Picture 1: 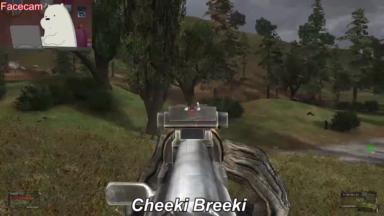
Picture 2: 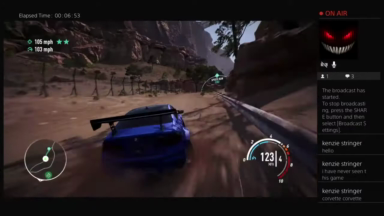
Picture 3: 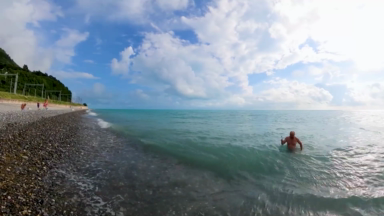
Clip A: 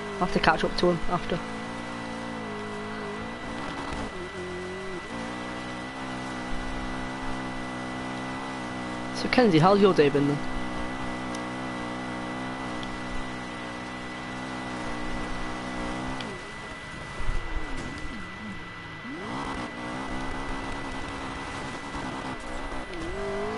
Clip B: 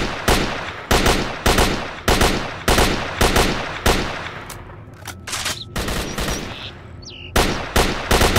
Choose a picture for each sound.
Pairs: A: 2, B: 1